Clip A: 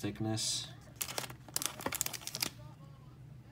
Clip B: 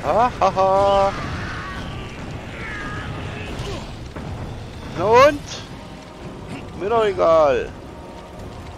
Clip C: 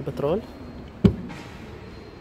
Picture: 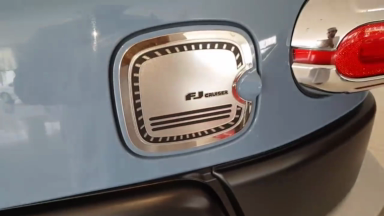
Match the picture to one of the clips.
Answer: C